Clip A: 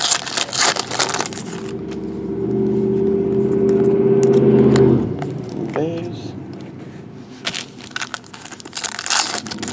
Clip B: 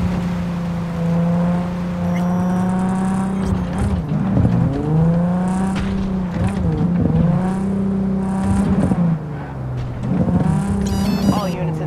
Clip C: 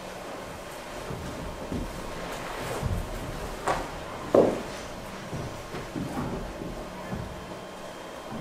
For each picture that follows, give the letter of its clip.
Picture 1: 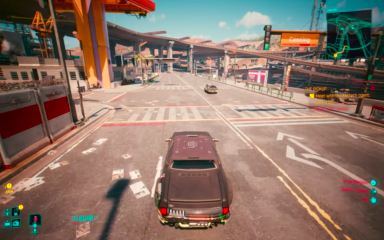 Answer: B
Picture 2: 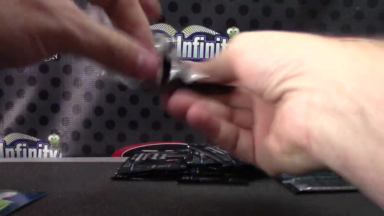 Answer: A